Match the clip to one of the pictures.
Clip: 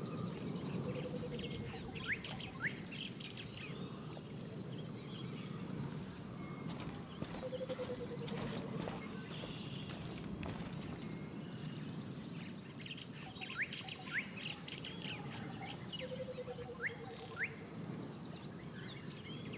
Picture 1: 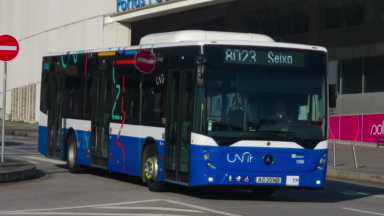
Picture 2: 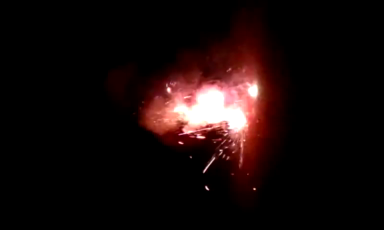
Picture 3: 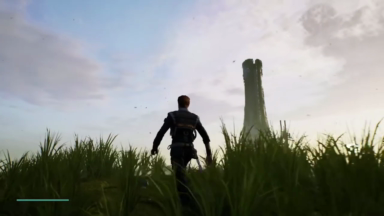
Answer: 3